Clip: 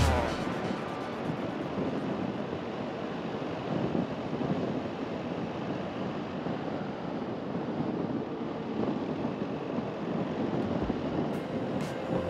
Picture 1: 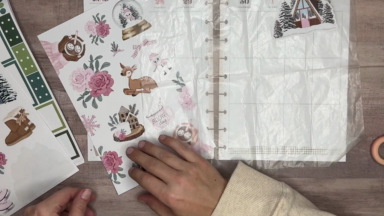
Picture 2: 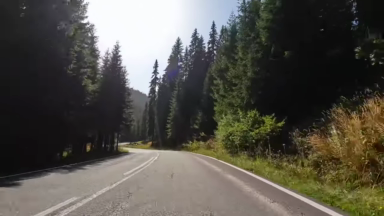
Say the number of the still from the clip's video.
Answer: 2